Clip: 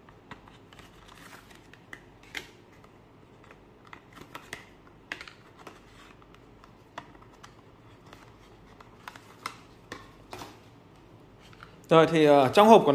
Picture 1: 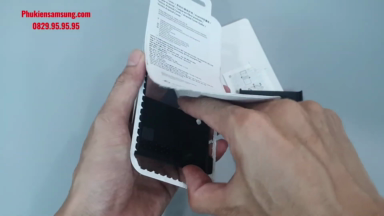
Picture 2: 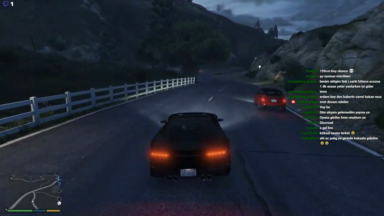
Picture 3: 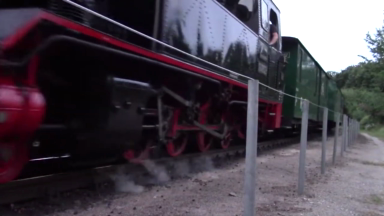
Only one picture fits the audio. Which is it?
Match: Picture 1